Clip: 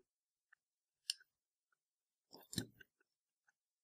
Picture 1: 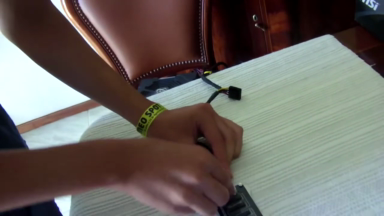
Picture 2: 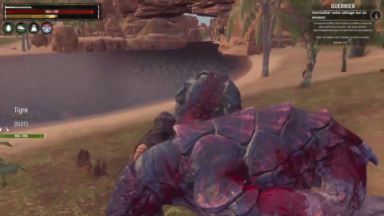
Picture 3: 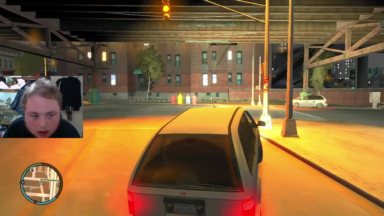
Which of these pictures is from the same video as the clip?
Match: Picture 1